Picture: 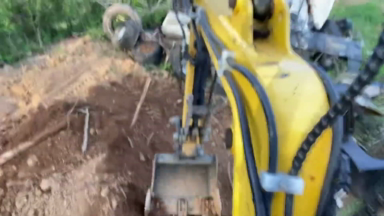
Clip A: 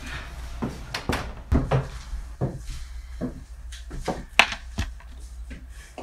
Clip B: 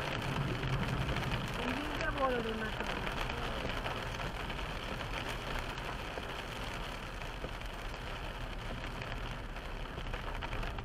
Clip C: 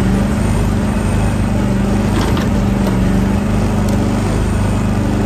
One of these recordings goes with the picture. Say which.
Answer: C